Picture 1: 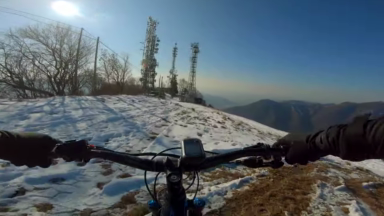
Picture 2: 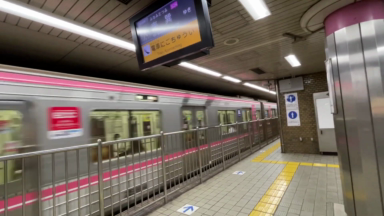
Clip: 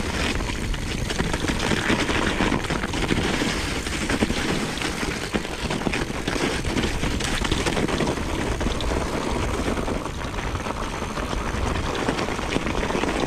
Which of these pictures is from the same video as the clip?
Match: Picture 1